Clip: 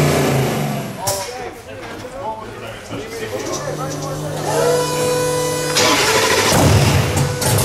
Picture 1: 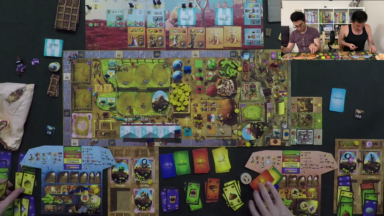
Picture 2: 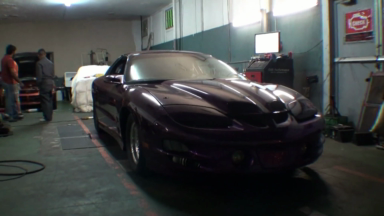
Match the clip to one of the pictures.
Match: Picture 2